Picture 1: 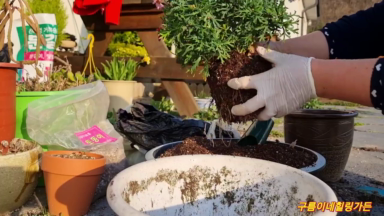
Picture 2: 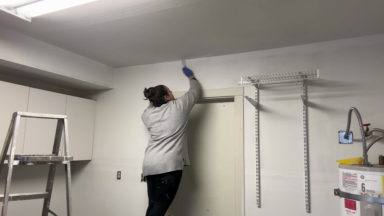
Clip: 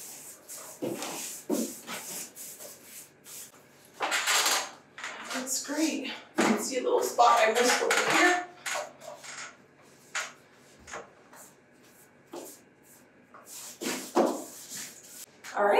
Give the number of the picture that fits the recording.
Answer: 2